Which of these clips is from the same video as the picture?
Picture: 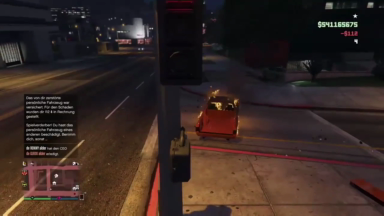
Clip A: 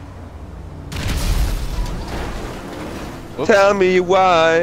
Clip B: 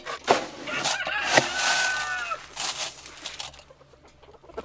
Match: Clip A